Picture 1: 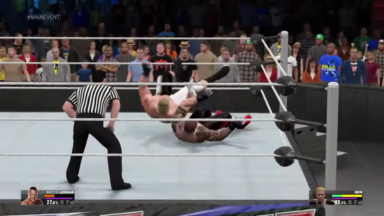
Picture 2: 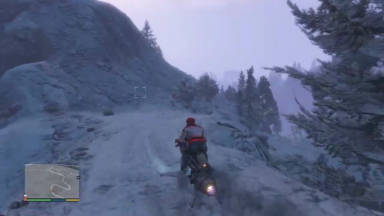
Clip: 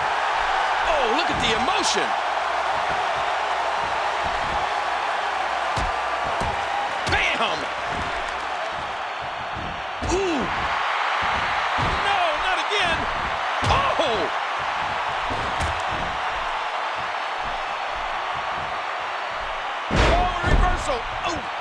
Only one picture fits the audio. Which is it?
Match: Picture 1